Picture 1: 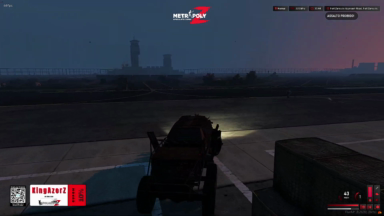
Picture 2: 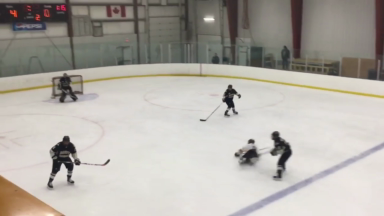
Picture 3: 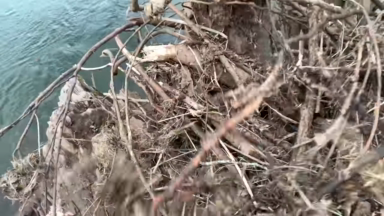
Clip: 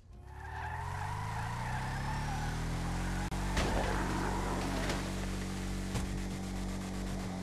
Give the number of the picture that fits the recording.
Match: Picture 1